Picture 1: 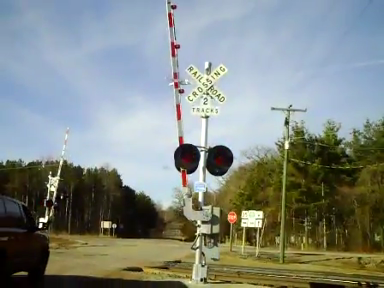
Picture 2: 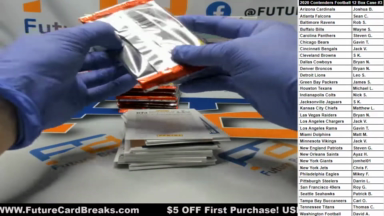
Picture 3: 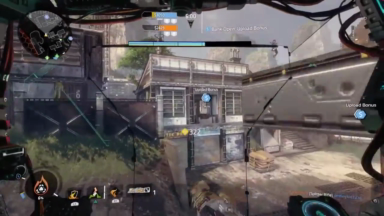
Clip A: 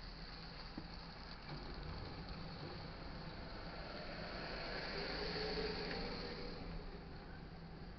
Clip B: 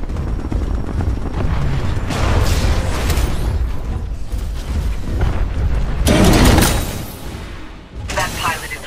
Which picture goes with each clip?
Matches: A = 1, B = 3